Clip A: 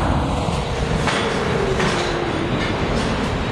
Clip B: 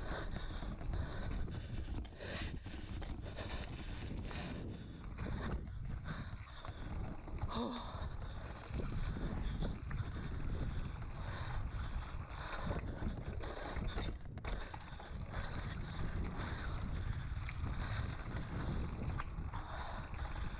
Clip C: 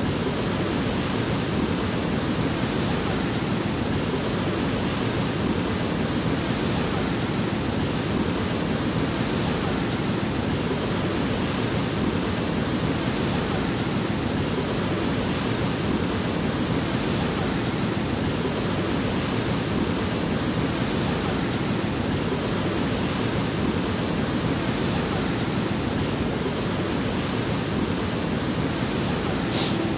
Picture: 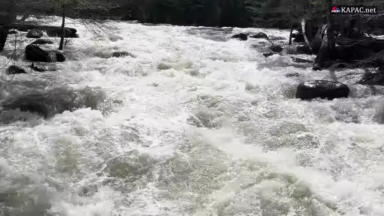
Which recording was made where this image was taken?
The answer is C